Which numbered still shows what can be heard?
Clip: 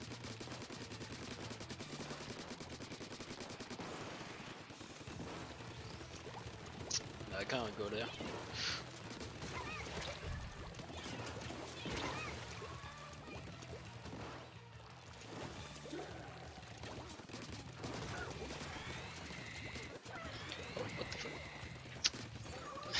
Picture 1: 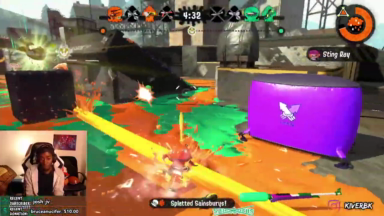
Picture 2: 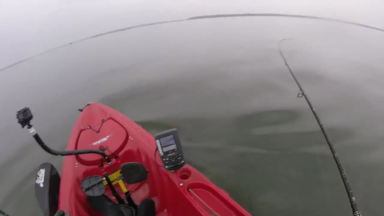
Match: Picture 1